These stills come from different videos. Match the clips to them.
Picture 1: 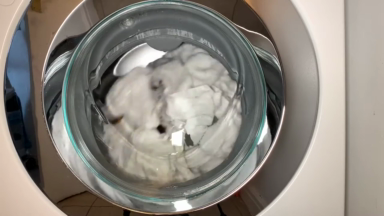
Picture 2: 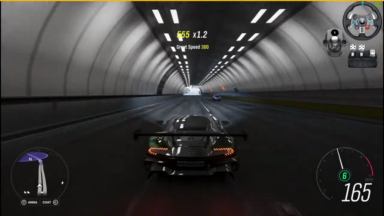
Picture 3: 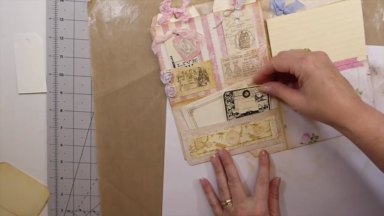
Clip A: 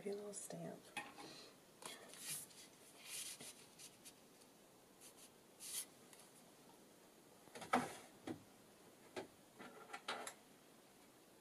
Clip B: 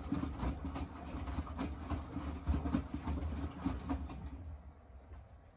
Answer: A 3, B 1